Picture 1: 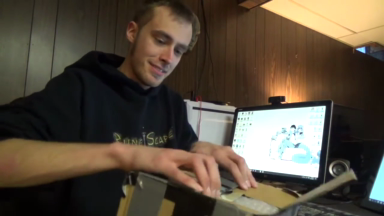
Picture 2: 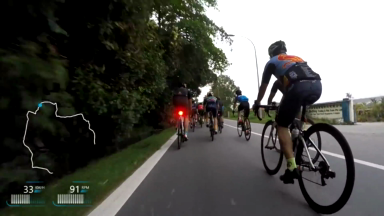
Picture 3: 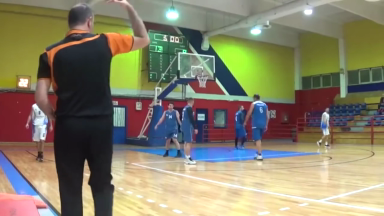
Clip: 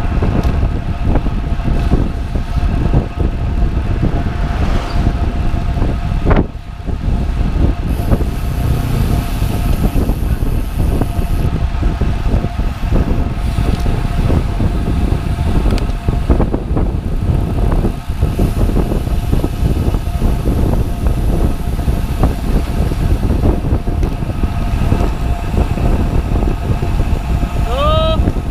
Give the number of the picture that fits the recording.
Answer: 2